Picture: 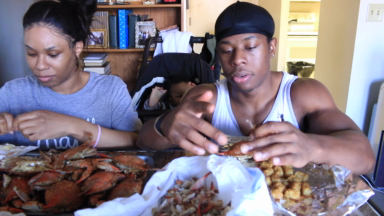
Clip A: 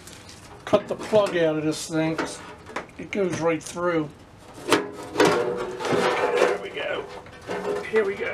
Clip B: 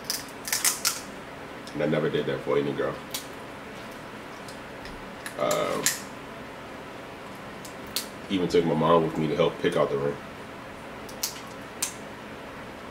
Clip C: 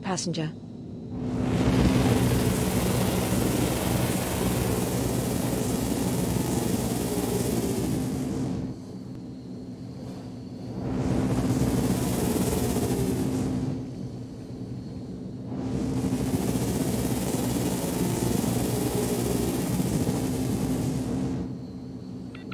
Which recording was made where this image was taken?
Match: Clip B